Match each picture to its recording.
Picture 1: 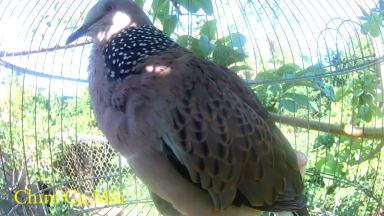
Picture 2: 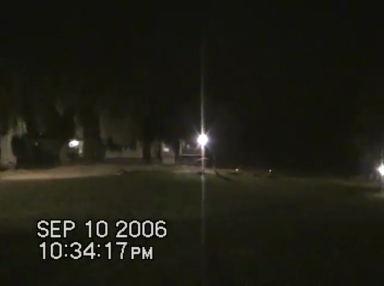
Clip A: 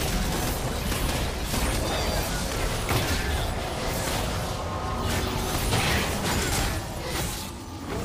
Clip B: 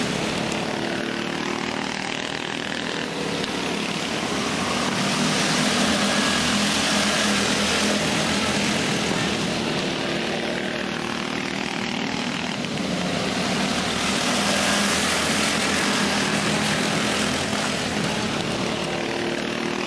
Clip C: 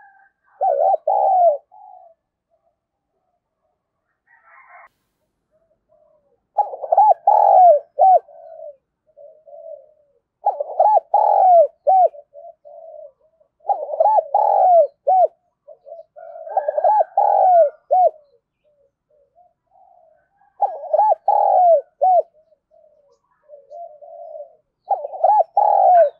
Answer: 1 C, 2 B